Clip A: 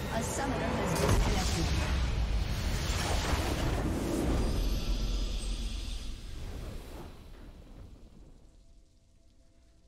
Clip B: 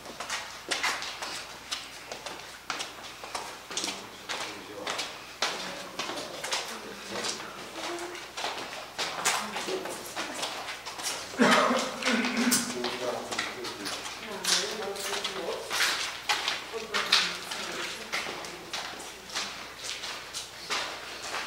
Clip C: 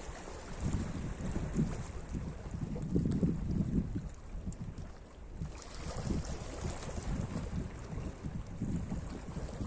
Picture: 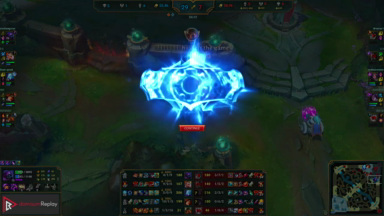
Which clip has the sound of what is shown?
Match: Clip A